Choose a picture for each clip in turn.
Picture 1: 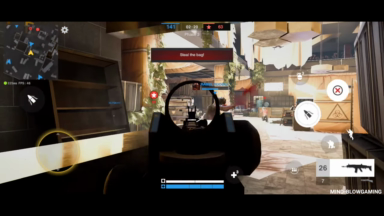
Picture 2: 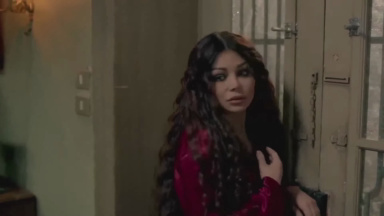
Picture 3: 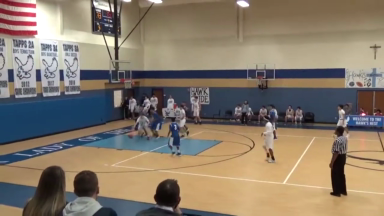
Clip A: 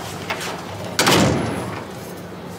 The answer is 2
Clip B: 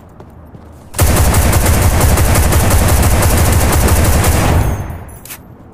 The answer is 1